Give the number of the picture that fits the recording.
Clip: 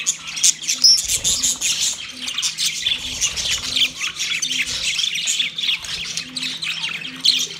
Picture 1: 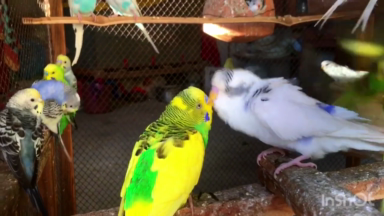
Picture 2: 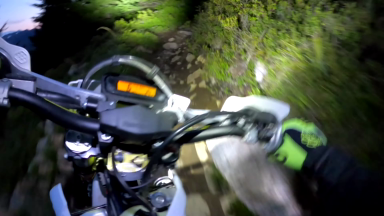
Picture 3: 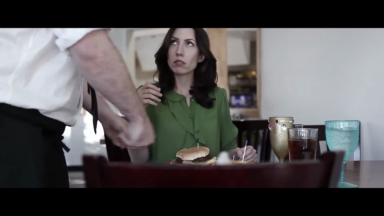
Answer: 1